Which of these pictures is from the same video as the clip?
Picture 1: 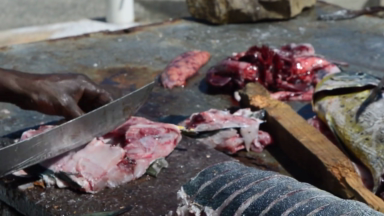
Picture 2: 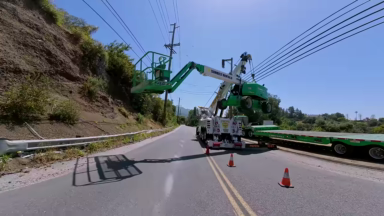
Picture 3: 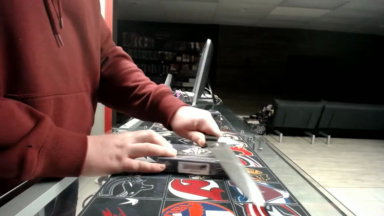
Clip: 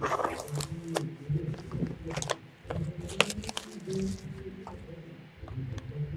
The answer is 3